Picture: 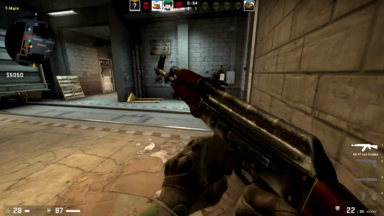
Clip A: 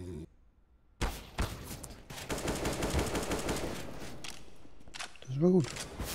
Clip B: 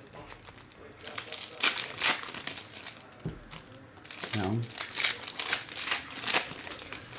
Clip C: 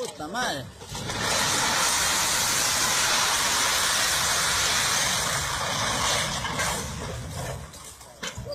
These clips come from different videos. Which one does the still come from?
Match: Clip A